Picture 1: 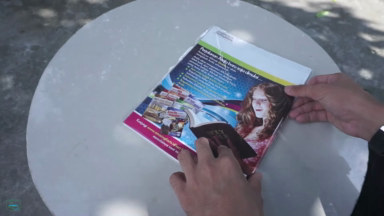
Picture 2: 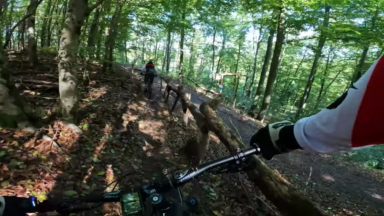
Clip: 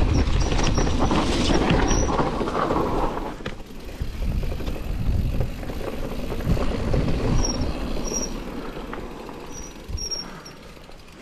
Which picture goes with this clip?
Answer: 2